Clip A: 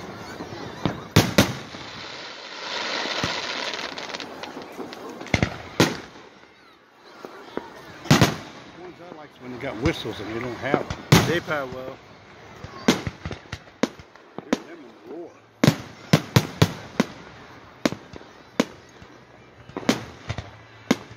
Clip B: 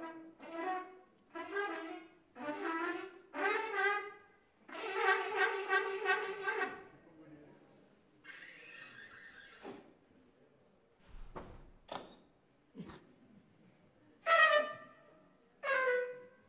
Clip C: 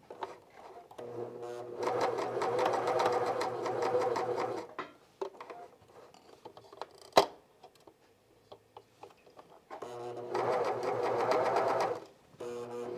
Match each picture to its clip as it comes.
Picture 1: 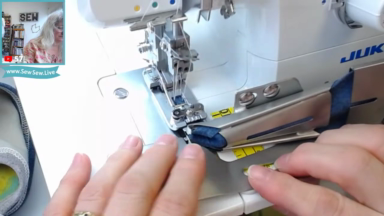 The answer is C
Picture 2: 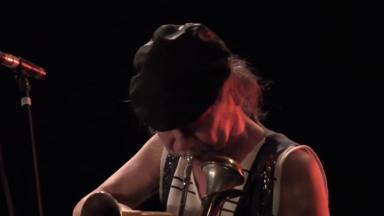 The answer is B